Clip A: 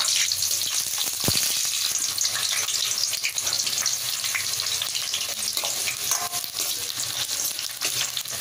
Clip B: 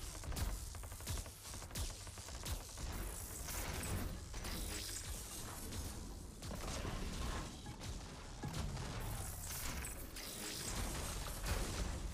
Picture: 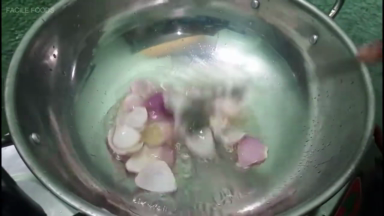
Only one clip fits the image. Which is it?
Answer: A